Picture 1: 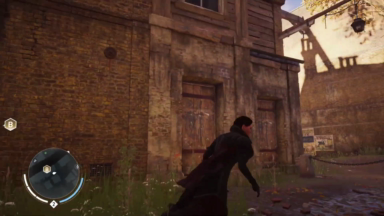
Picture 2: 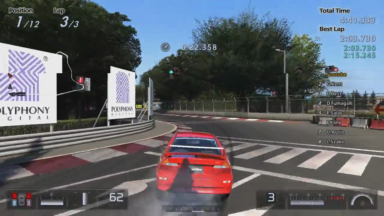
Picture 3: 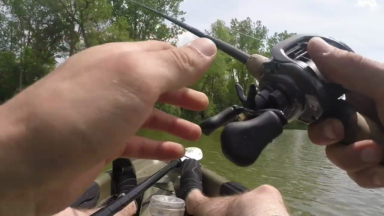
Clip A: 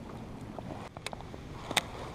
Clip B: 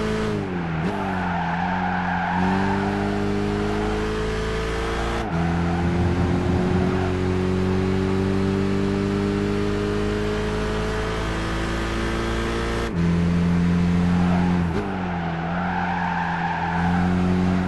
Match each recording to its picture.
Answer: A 3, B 2